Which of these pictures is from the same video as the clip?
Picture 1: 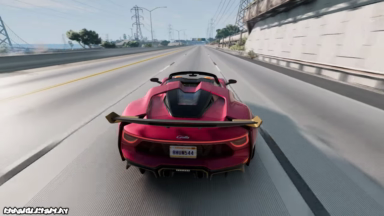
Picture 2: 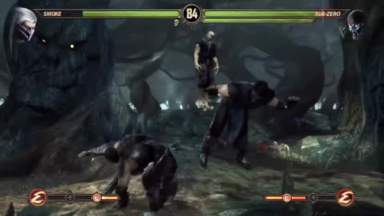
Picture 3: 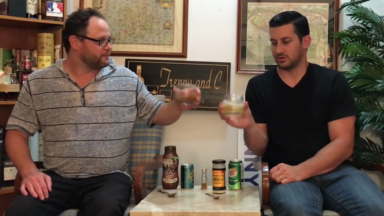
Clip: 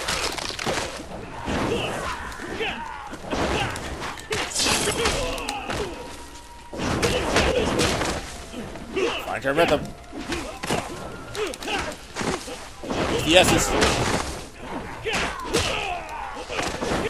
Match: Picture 2